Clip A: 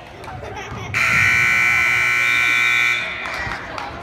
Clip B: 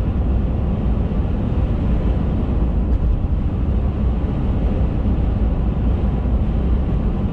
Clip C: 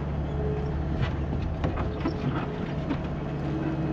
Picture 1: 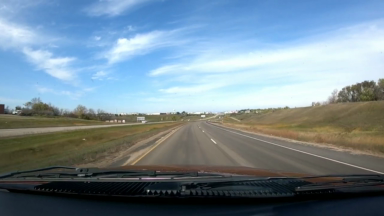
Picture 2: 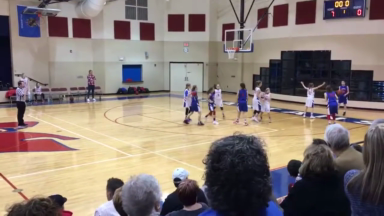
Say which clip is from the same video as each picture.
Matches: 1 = B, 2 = A